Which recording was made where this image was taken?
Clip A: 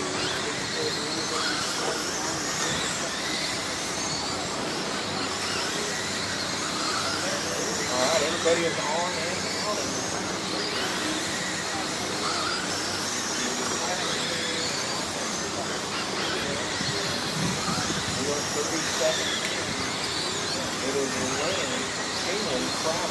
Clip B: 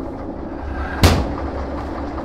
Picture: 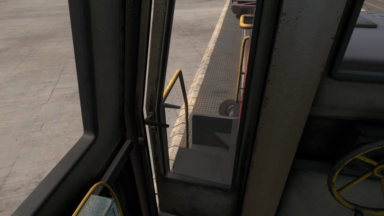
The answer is B